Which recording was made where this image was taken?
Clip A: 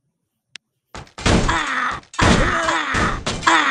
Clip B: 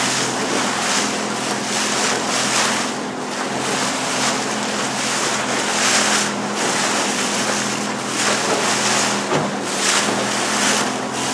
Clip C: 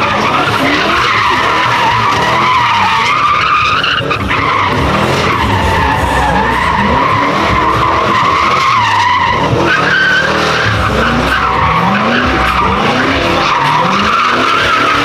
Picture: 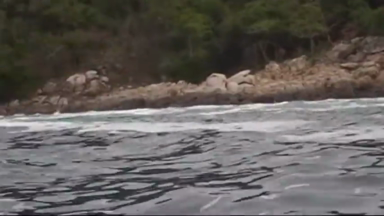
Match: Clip B